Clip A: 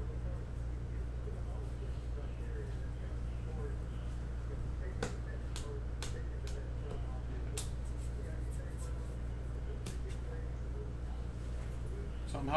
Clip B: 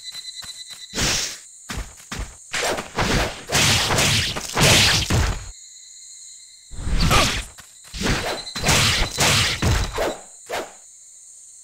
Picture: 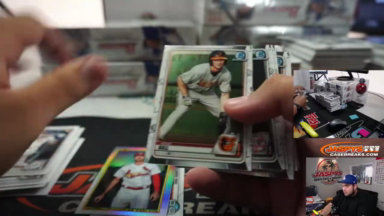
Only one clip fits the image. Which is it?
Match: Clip A